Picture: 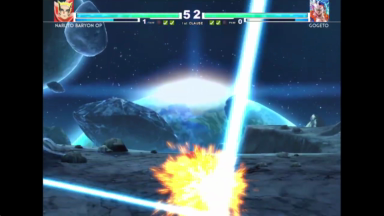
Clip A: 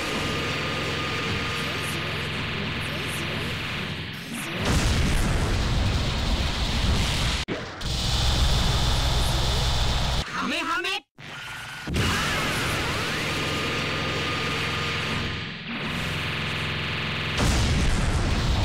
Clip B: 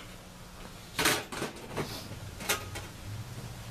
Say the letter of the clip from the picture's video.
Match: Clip A